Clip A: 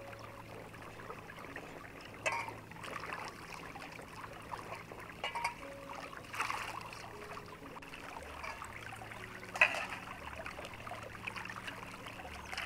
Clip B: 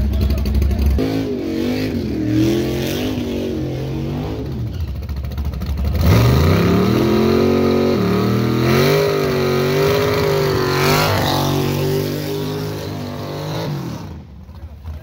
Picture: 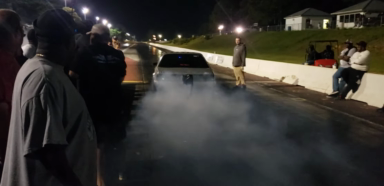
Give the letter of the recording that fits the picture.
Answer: B